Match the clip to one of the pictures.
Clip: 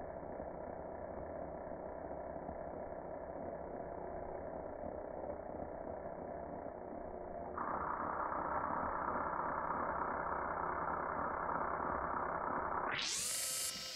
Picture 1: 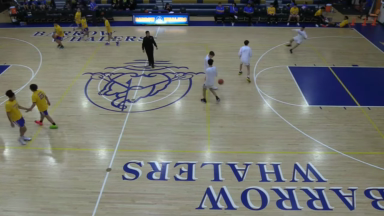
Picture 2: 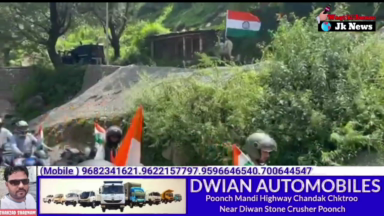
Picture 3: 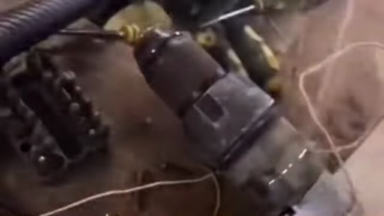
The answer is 3